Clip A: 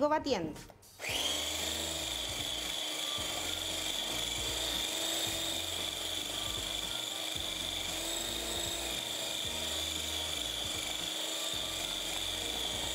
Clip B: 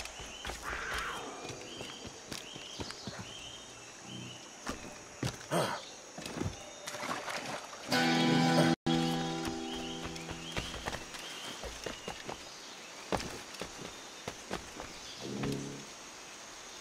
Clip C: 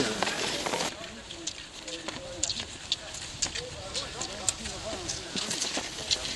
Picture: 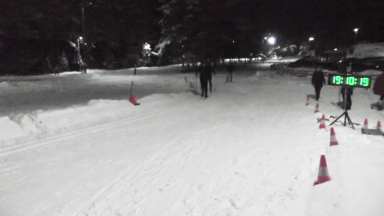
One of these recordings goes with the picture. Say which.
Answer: C